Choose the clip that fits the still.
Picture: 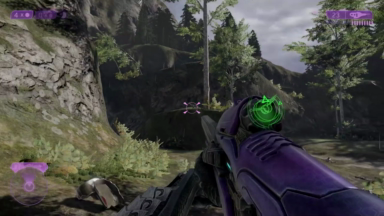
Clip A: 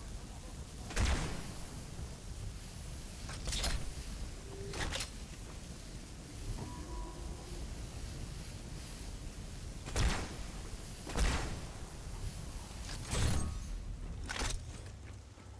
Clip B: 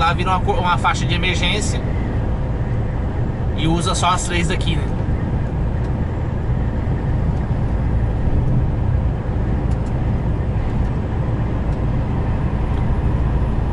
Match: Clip A